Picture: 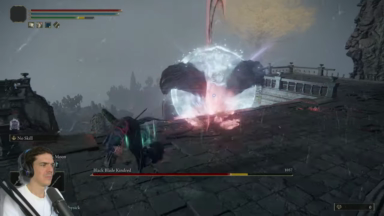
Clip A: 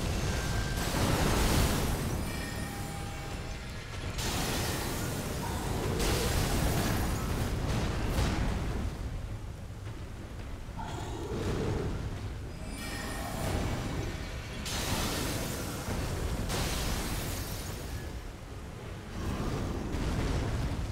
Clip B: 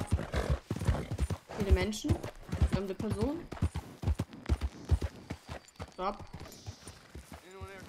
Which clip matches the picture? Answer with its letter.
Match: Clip A